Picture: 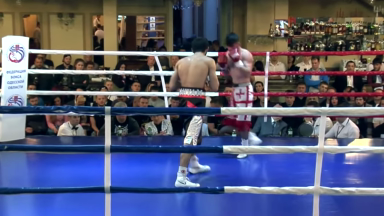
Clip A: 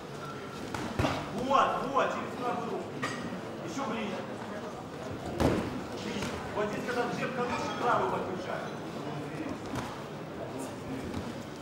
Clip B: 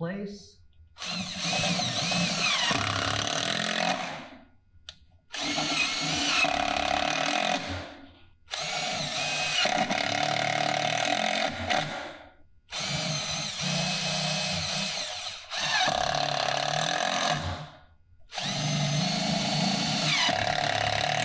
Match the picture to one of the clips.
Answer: A